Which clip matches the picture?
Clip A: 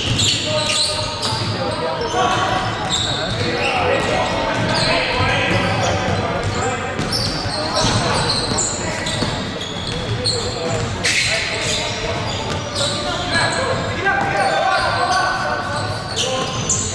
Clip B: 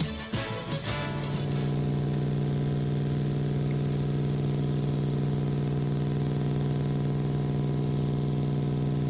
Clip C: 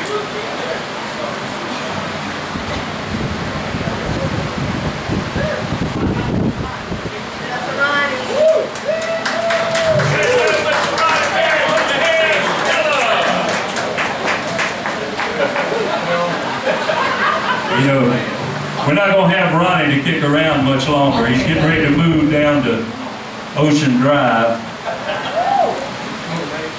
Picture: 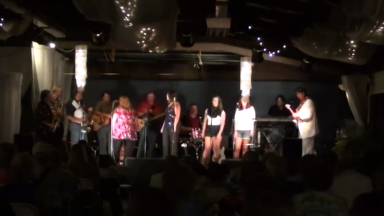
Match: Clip C